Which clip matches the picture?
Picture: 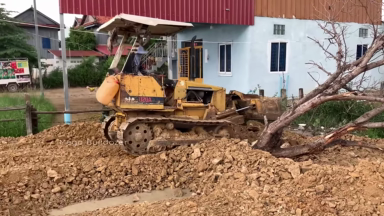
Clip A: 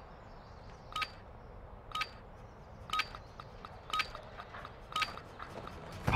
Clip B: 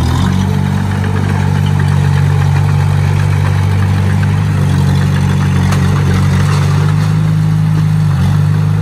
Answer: B